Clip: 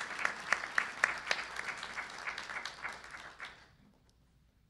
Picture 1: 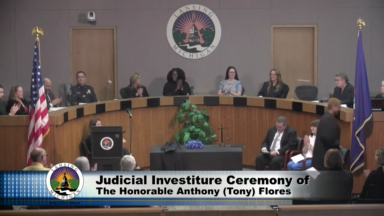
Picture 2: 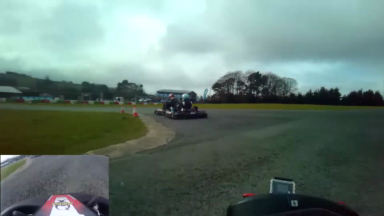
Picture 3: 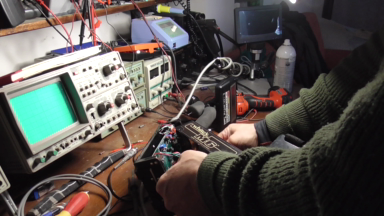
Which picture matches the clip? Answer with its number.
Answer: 1